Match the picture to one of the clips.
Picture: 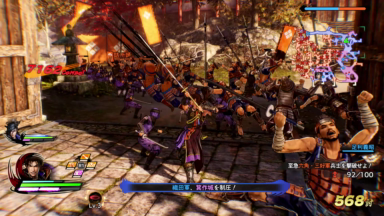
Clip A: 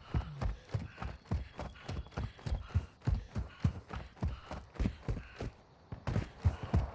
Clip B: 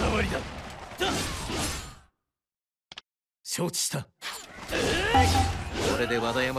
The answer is B